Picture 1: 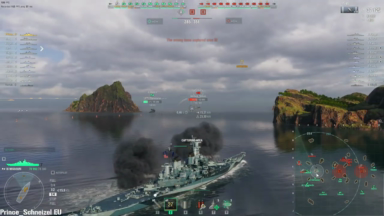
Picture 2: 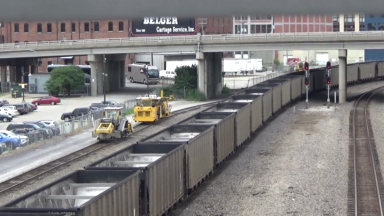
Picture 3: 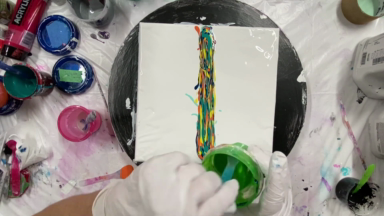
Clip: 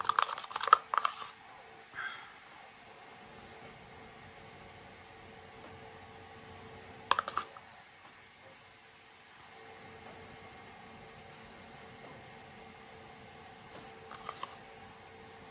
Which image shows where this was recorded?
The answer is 3